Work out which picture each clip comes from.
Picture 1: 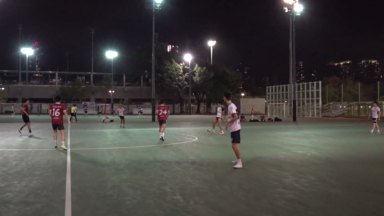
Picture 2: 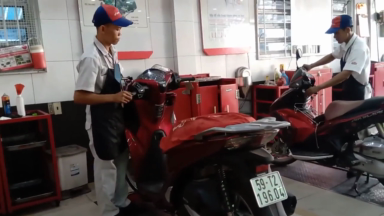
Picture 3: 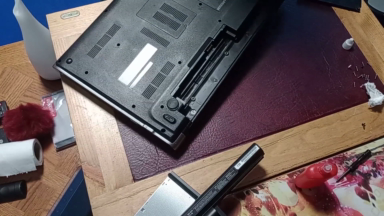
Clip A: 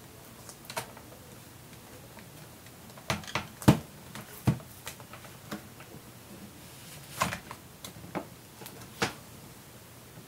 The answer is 3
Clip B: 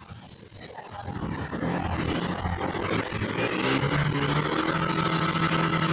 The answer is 2